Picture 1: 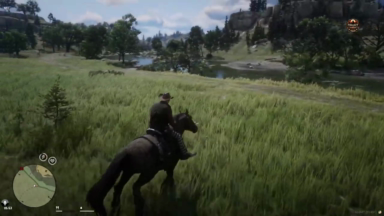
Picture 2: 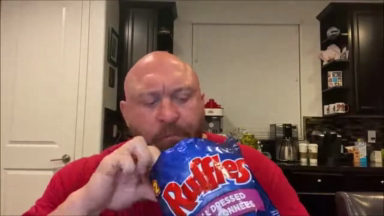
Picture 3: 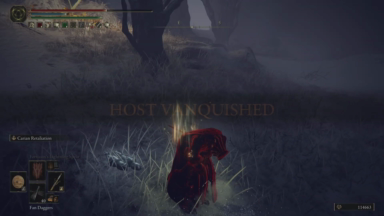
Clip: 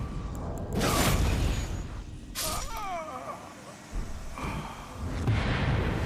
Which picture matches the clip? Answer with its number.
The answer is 3